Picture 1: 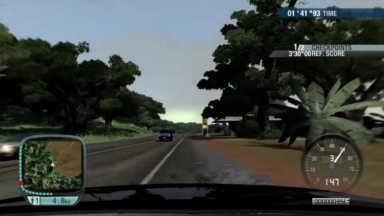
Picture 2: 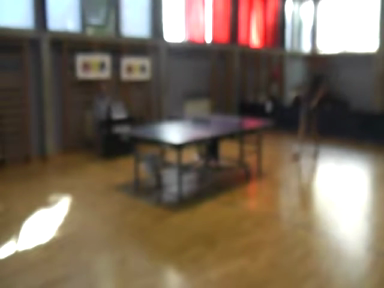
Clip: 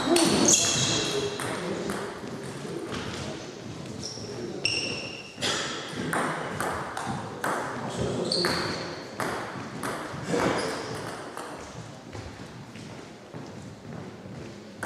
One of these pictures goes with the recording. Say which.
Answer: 2